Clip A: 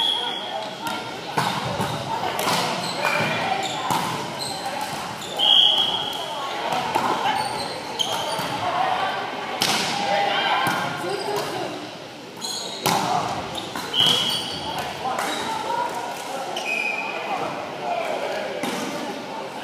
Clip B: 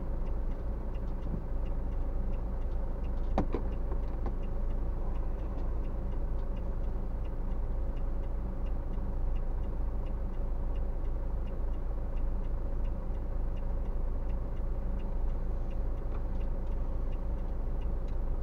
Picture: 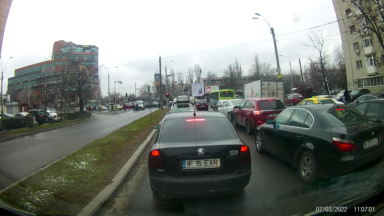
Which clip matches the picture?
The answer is B